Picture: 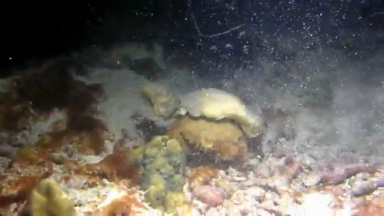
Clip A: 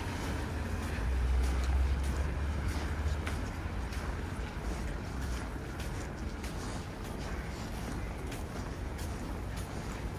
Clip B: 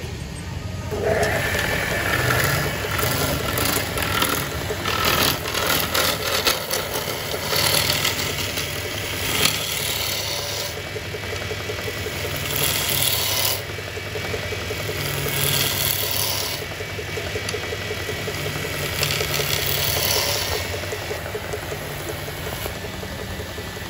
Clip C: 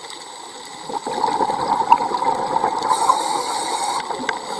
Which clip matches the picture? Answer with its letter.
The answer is C